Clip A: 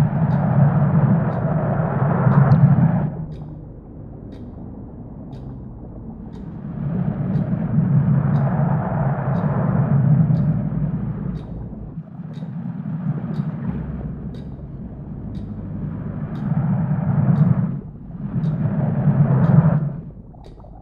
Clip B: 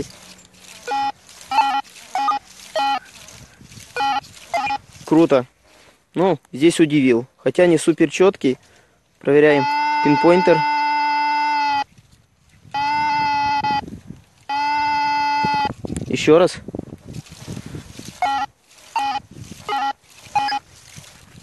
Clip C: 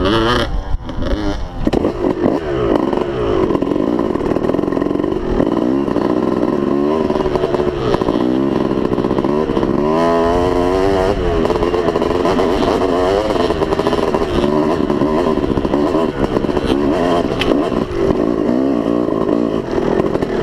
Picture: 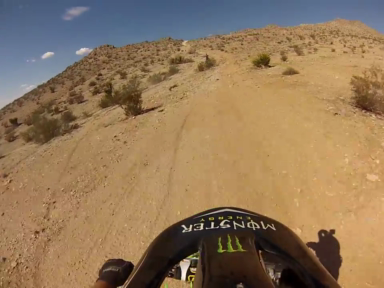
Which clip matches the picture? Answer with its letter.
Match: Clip C